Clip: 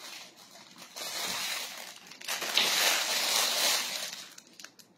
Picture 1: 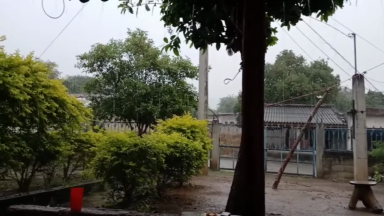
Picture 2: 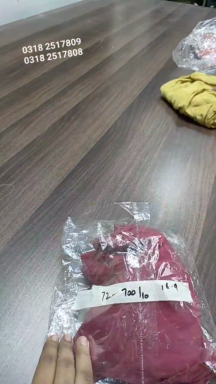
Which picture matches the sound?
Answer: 2